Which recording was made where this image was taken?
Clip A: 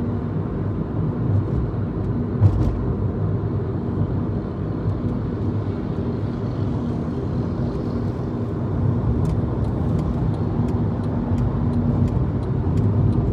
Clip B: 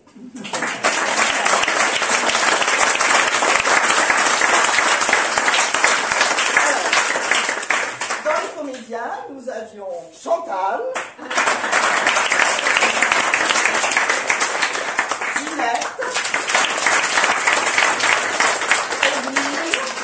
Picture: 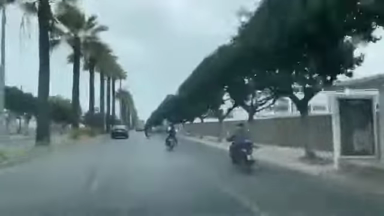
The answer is A